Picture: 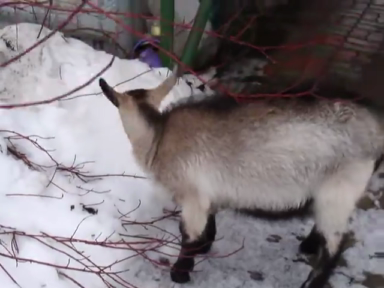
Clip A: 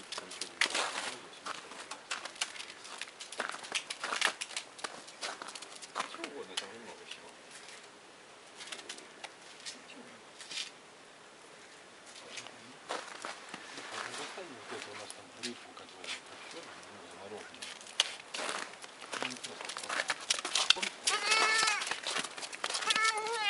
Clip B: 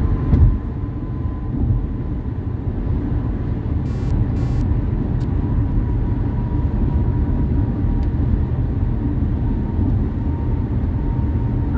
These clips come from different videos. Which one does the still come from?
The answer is A